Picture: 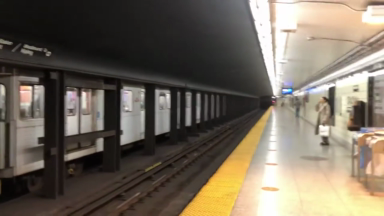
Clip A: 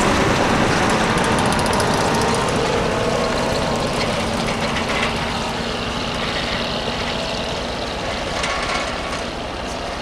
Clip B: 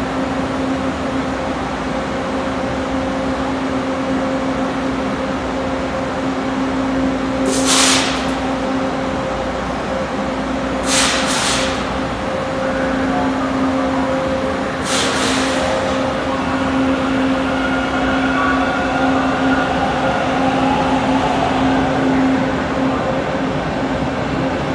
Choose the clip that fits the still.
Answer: B